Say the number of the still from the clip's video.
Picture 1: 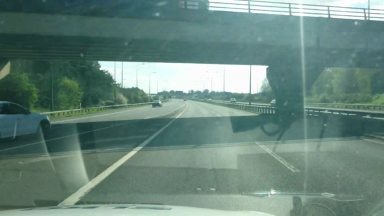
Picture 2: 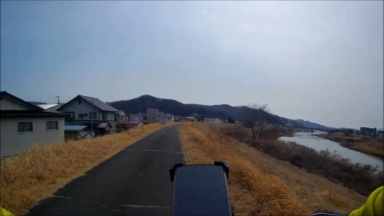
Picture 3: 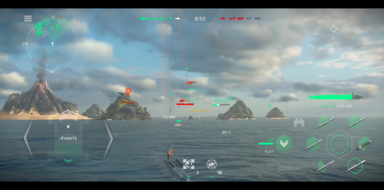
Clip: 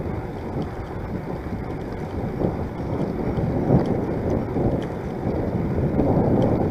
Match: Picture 2